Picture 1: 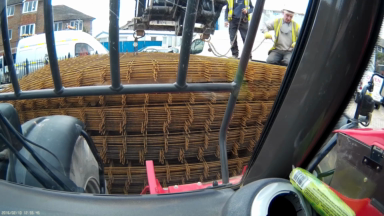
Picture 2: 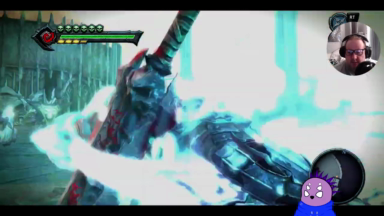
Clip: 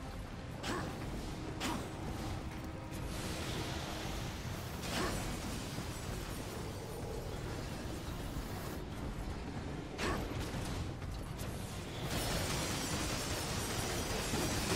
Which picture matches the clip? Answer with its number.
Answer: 2